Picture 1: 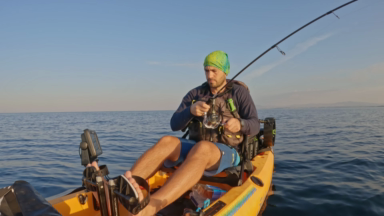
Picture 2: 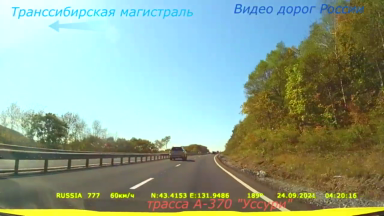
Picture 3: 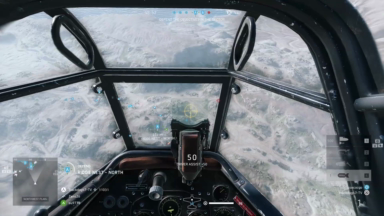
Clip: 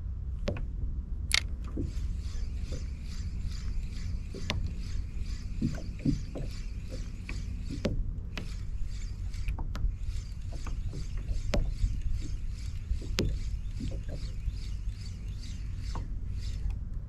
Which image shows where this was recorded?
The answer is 1